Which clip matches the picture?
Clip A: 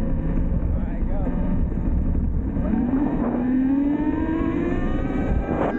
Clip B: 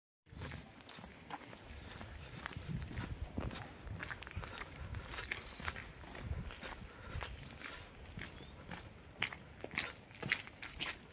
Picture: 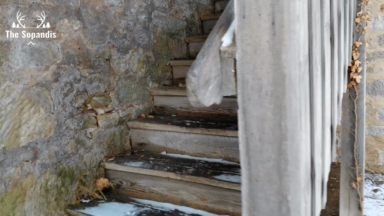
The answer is B